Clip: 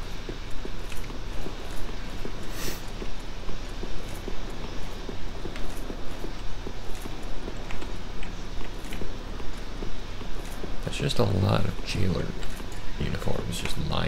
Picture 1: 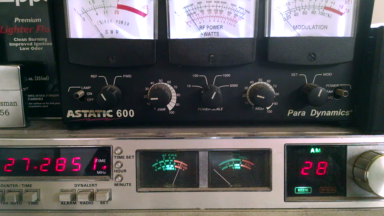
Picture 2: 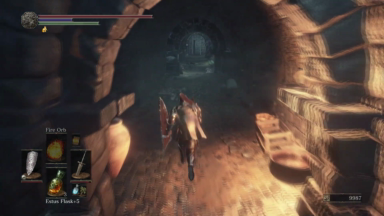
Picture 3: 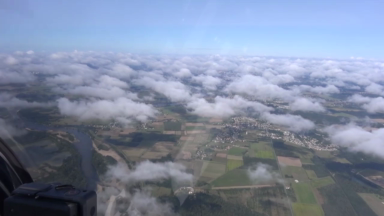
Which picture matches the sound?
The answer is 2